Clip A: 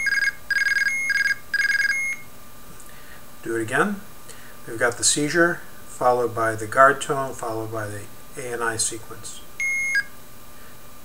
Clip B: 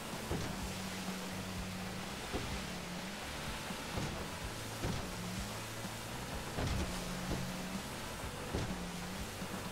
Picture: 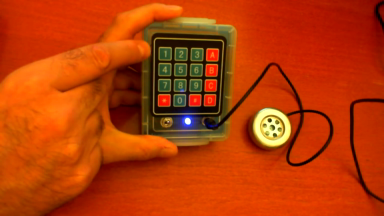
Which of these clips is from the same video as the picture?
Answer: A